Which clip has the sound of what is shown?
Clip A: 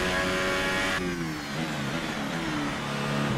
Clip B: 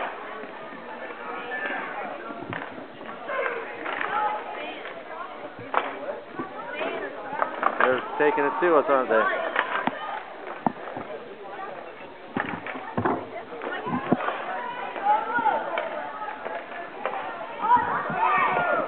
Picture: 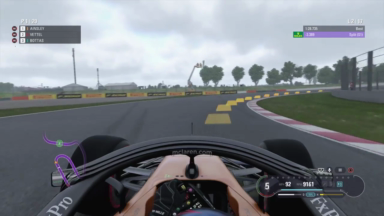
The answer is A